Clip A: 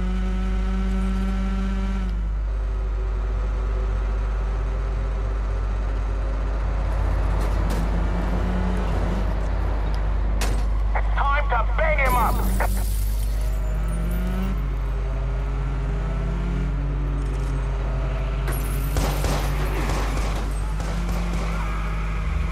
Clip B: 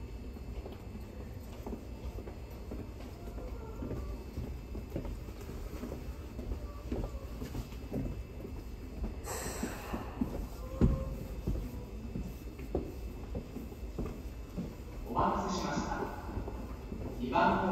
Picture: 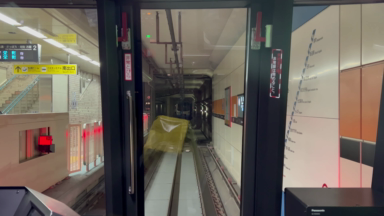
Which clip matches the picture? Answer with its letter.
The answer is B